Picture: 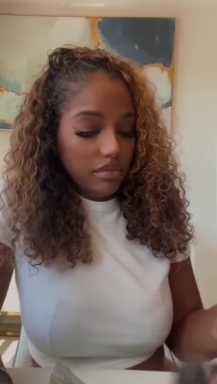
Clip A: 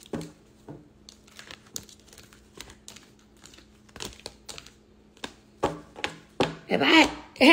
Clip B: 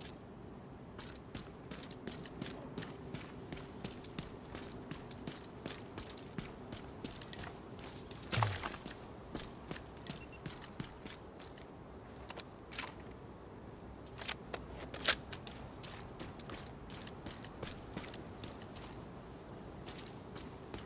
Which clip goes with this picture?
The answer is A